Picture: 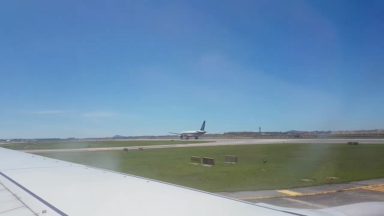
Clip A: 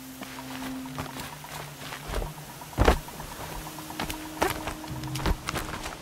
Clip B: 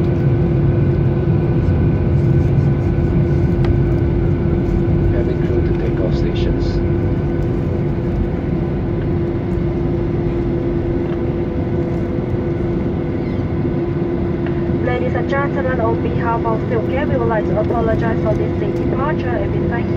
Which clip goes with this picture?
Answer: B